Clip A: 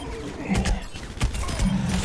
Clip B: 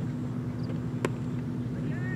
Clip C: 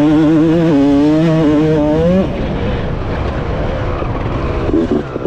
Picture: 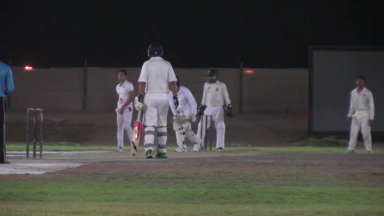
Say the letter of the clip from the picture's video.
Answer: B